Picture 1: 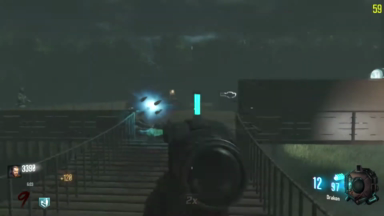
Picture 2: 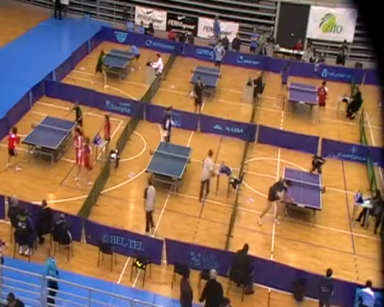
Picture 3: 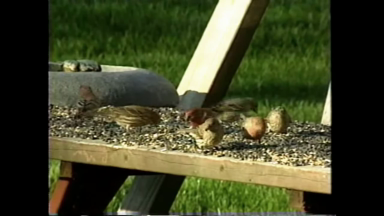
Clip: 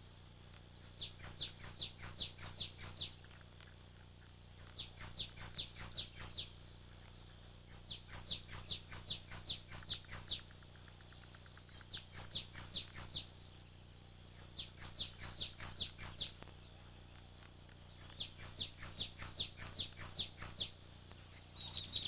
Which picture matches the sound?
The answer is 3